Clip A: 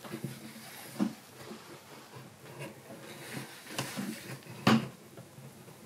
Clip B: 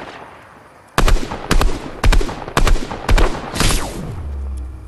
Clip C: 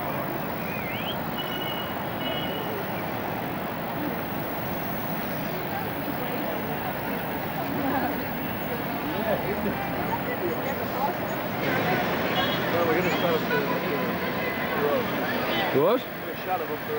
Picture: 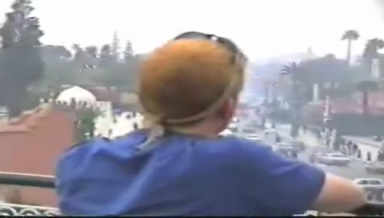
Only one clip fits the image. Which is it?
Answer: C